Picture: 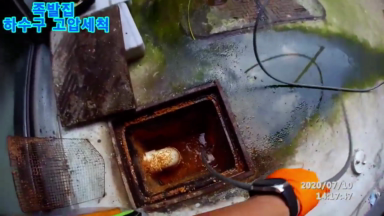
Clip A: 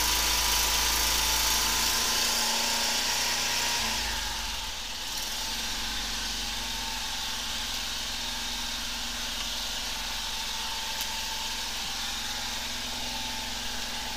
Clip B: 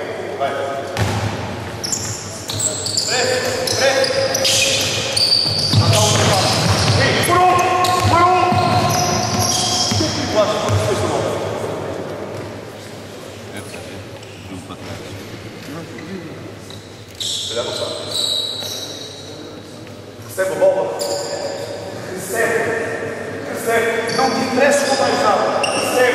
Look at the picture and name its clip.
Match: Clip A